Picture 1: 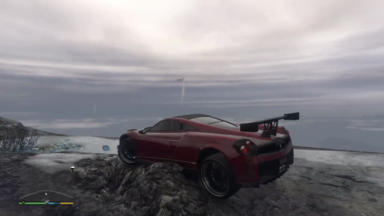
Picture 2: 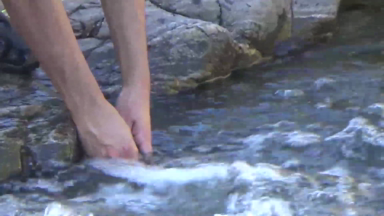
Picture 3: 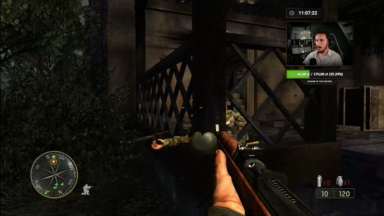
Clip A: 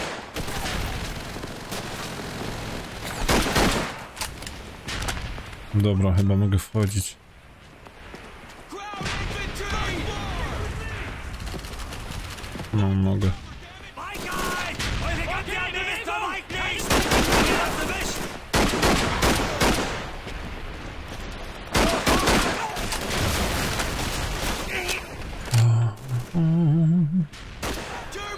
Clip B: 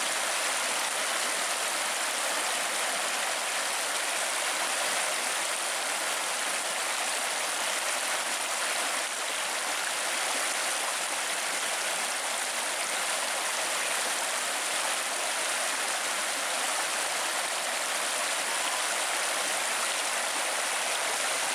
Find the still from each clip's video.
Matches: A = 3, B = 2